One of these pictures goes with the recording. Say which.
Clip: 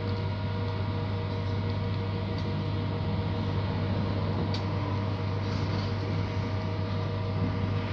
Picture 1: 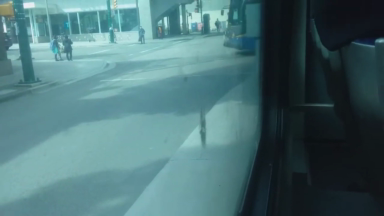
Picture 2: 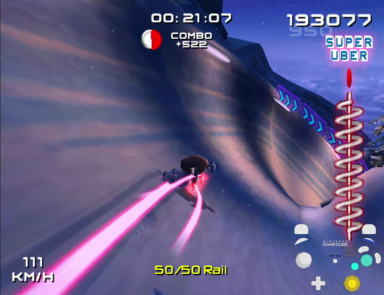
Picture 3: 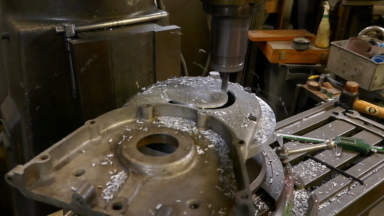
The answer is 1